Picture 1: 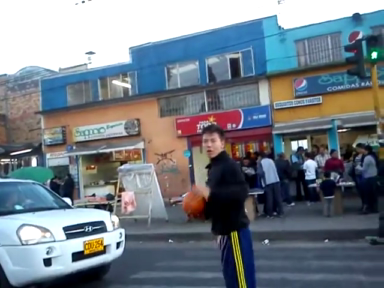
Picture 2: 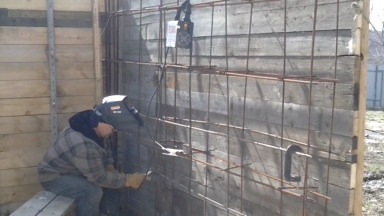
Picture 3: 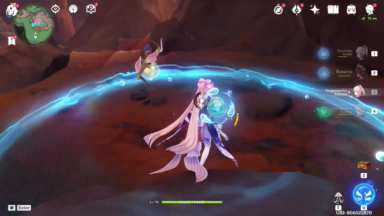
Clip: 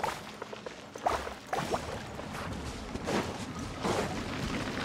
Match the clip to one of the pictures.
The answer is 3